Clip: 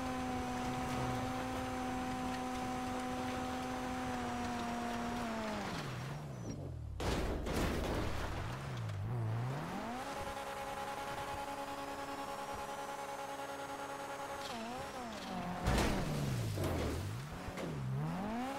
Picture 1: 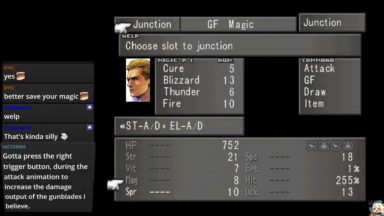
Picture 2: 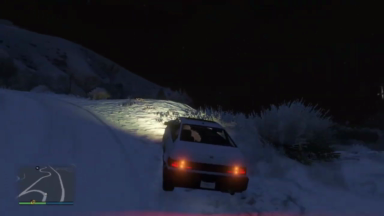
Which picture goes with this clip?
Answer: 2